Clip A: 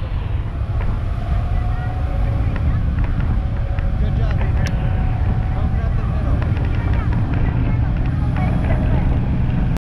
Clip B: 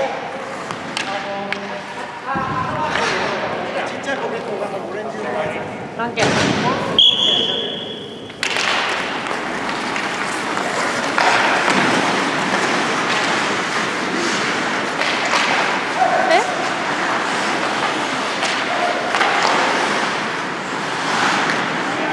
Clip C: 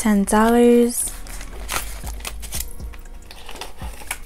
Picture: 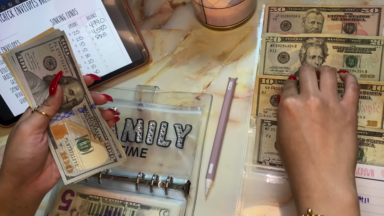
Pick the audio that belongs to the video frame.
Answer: C